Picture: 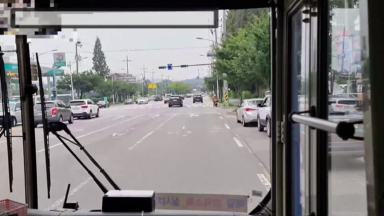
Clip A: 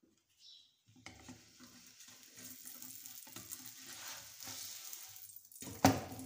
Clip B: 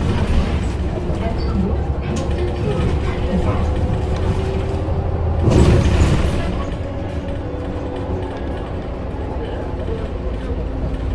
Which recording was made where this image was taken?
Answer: B